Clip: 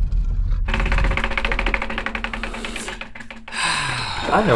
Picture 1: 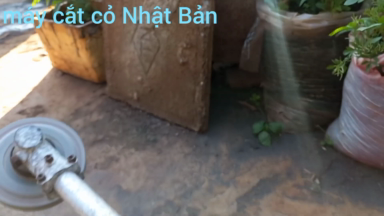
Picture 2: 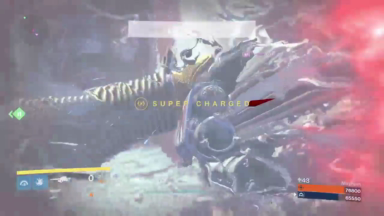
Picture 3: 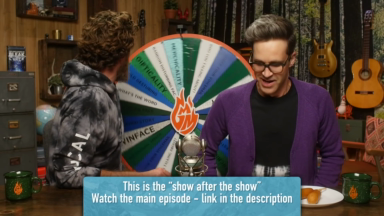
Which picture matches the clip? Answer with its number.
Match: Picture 3